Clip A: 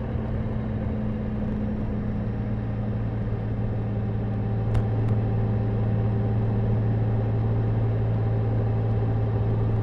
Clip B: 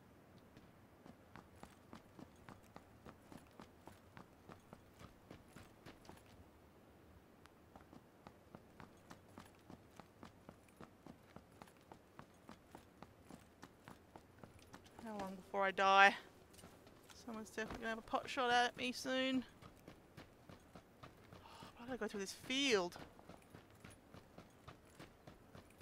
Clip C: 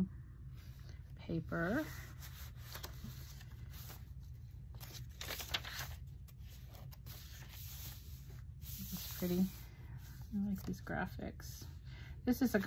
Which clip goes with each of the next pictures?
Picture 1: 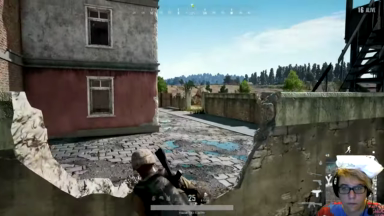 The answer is B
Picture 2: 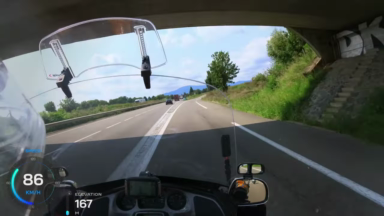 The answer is A